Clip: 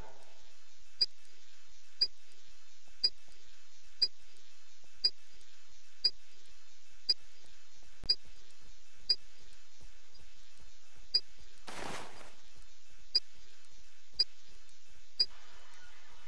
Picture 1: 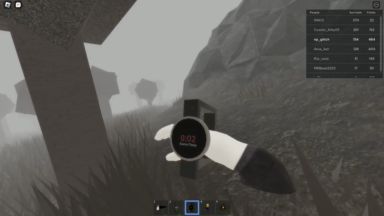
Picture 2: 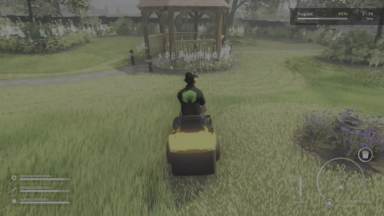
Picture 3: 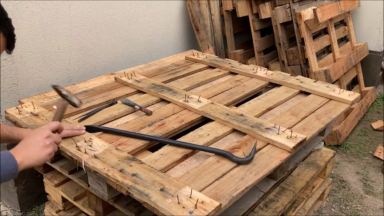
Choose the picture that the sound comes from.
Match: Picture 1